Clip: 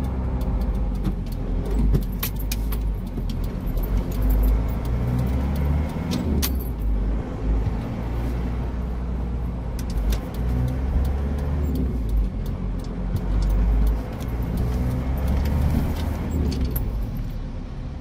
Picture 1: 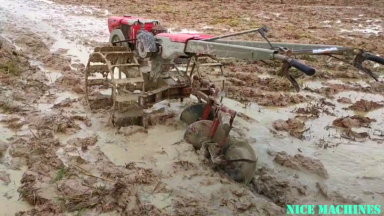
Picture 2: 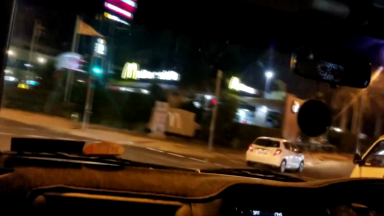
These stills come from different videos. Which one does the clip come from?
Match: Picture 2